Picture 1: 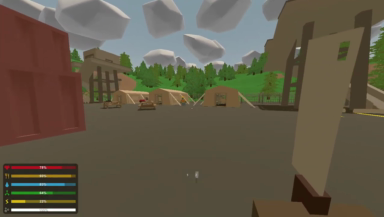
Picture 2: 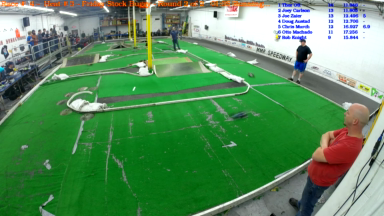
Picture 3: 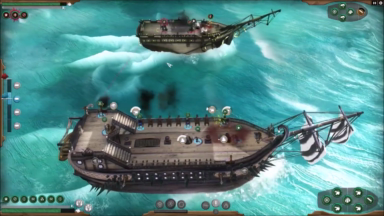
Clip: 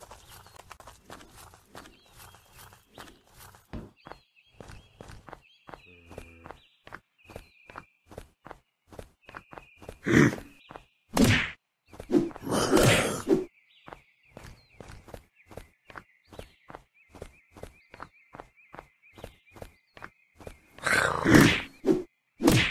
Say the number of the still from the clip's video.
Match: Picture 1